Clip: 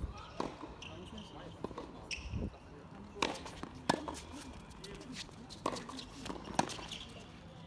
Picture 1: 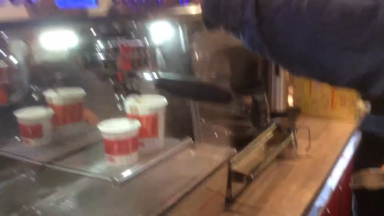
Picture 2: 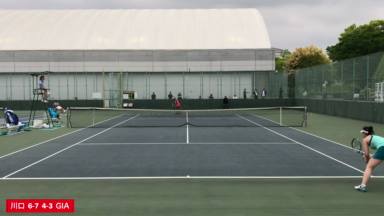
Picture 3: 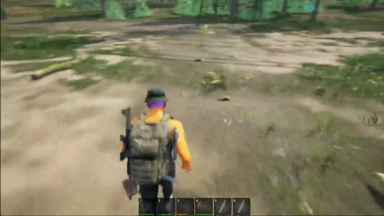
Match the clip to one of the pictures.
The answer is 2